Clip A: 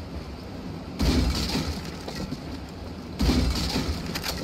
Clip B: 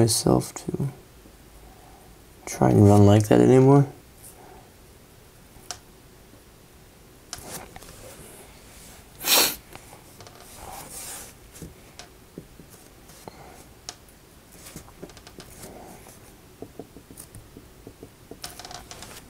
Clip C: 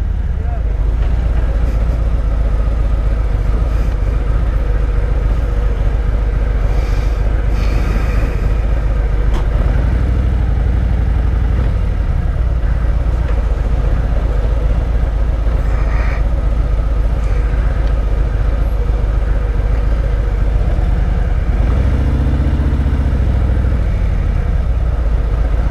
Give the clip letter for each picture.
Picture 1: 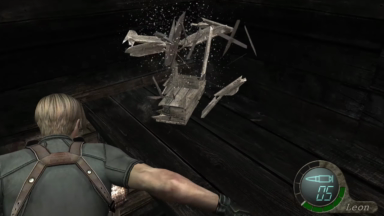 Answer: A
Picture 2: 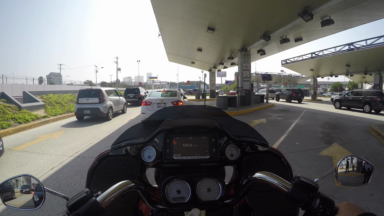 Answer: C